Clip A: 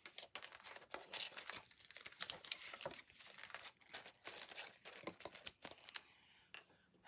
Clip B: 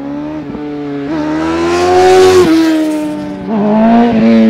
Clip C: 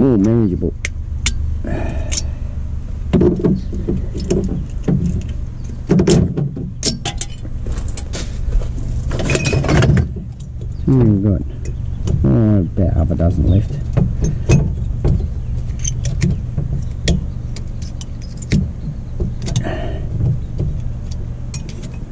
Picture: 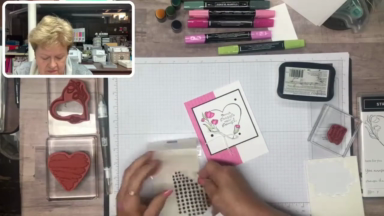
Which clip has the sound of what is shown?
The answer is A